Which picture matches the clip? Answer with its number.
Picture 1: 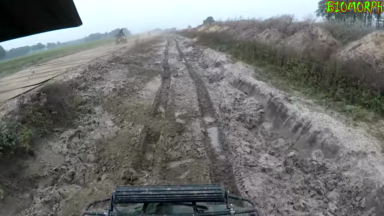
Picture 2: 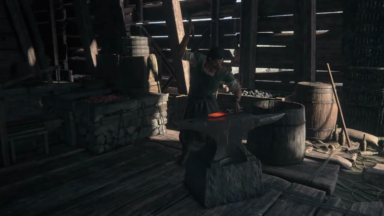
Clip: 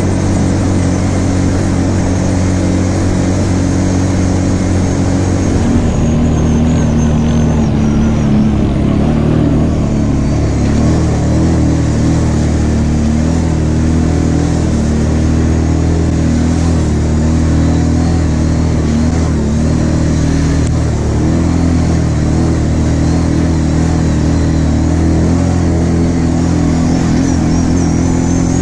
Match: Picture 1